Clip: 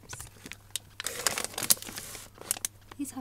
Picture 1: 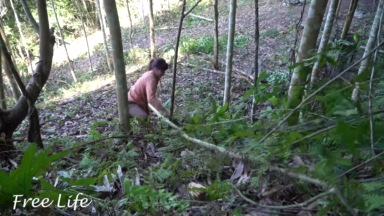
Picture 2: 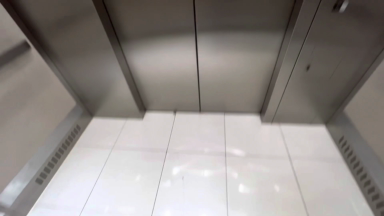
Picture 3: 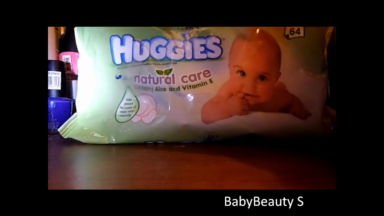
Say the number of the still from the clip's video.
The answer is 3